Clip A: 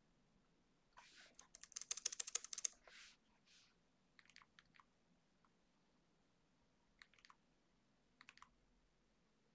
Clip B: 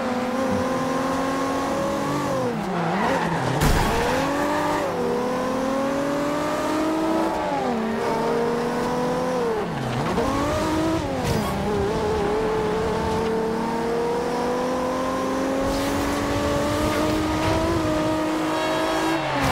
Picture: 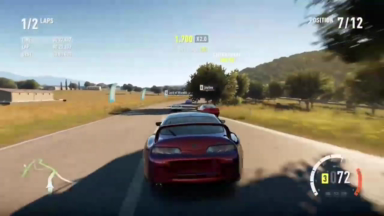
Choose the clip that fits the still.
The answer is B